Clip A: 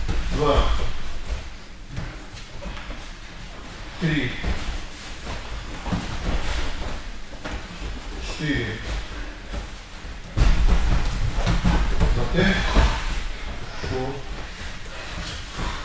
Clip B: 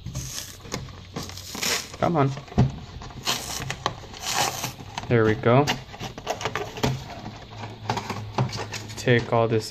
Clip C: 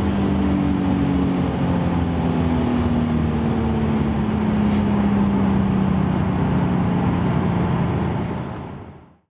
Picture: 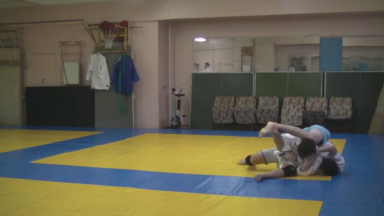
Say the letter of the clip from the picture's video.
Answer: A